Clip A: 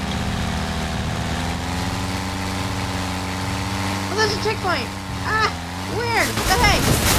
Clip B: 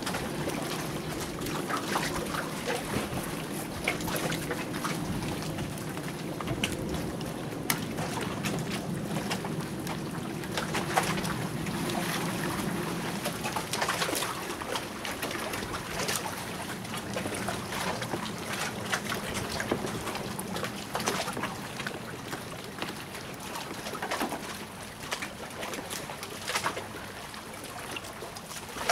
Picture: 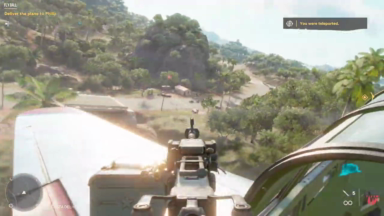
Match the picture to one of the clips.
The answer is A